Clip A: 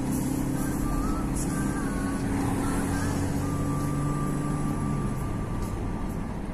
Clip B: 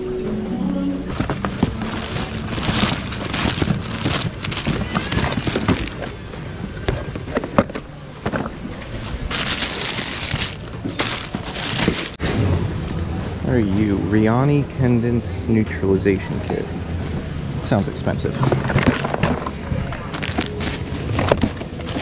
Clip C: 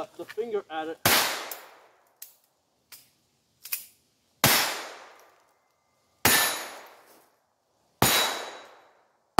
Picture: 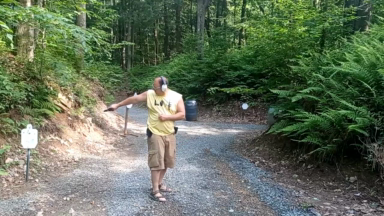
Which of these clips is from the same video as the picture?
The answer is C